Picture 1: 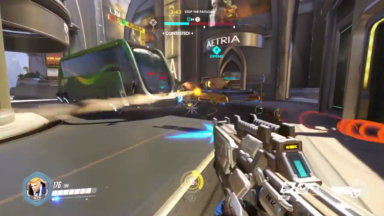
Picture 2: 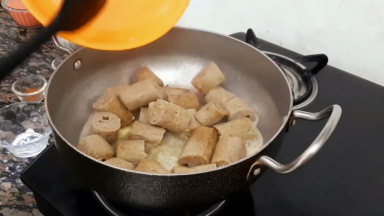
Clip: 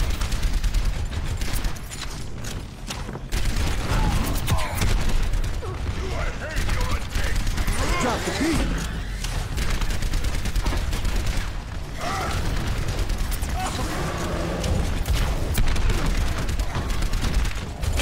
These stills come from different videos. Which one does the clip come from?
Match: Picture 1